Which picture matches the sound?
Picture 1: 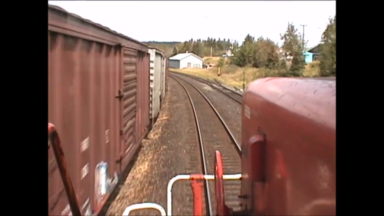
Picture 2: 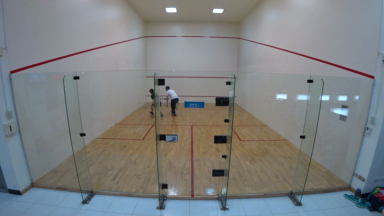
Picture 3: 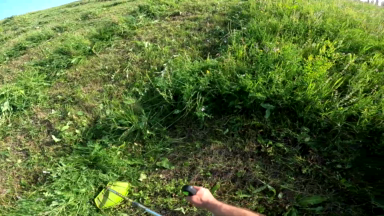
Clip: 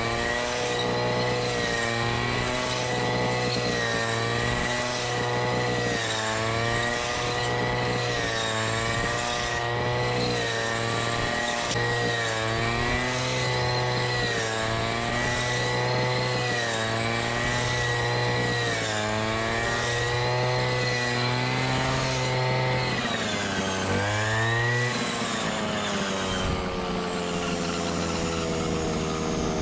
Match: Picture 3